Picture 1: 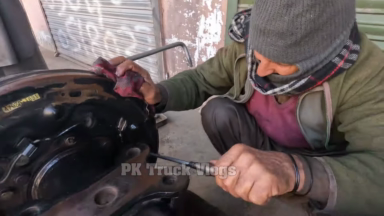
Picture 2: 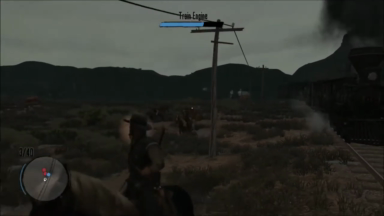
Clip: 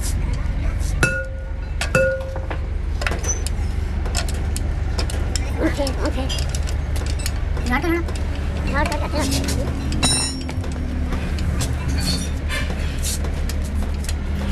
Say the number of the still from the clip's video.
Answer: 1